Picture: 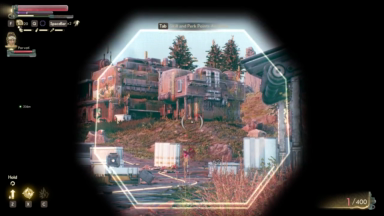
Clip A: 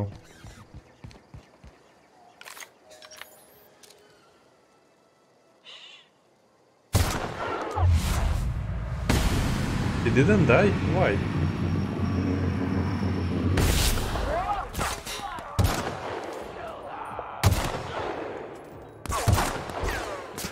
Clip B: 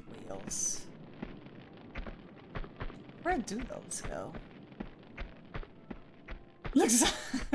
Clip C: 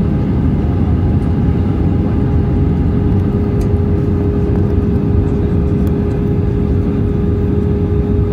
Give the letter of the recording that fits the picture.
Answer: A